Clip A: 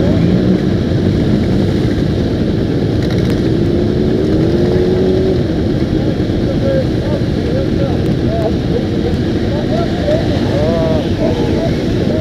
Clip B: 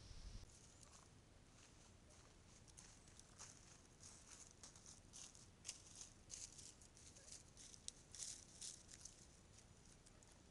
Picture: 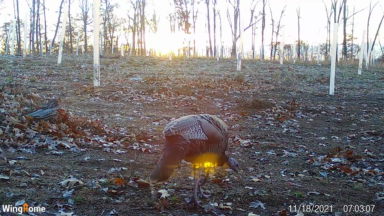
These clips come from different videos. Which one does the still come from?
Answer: B